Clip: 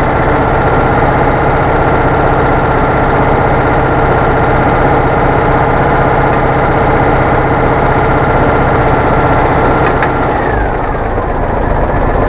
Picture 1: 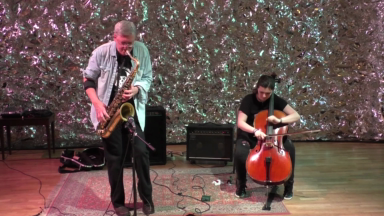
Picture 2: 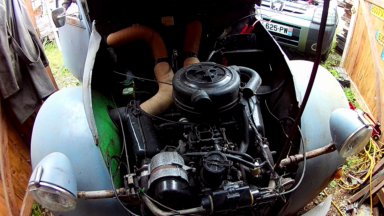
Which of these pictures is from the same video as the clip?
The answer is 2